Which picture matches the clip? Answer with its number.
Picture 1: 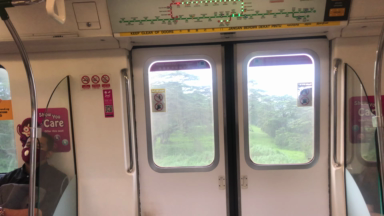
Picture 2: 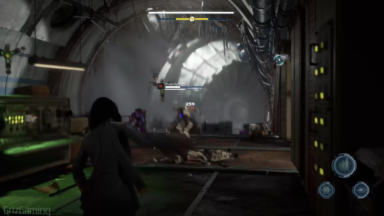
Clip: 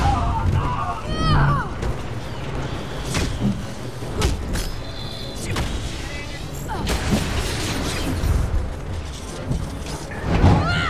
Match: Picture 2